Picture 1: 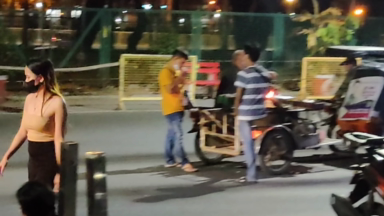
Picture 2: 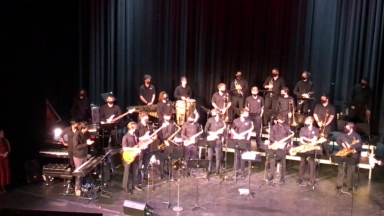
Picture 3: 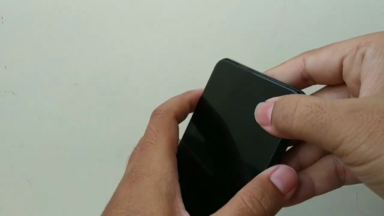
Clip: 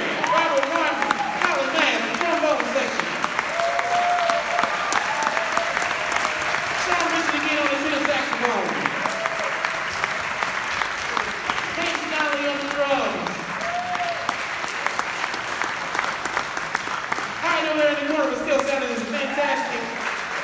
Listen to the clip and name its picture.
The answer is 2